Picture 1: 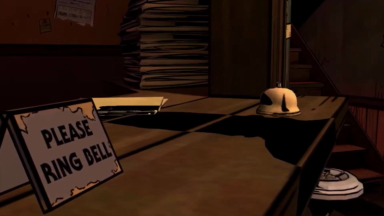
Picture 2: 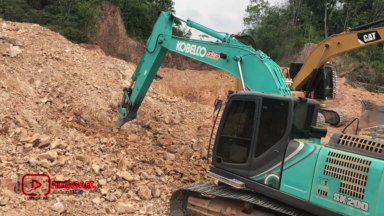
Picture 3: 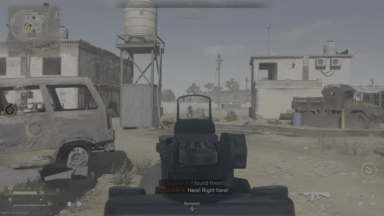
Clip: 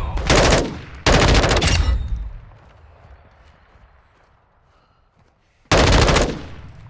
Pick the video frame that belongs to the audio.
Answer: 3